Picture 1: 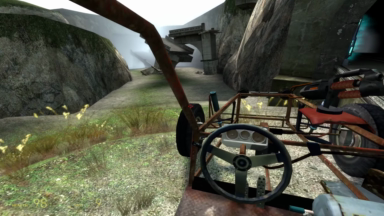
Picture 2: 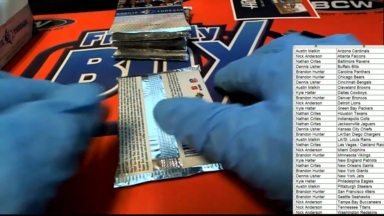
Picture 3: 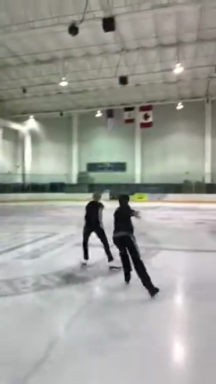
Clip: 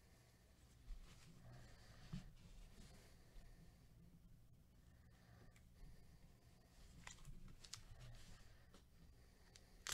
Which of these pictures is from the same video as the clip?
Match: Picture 2